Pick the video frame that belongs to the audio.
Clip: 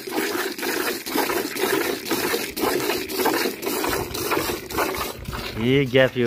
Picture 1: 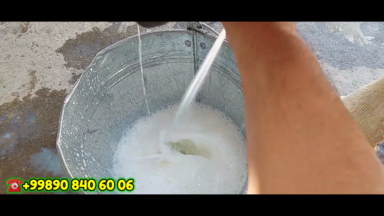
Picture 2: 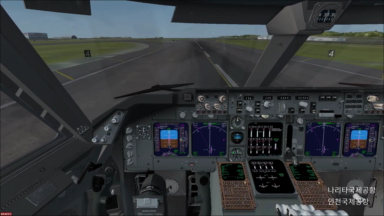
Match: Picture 1